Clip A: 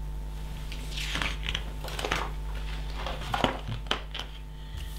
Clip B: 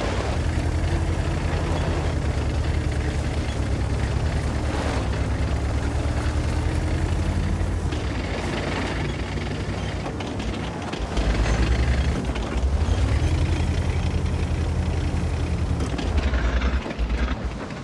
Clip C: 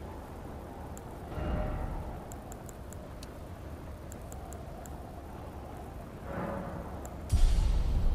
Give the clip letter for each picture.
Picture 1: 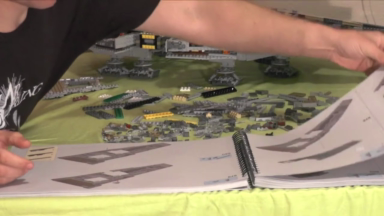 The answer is A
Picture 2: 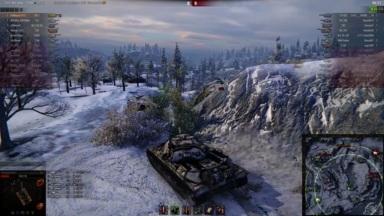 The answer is B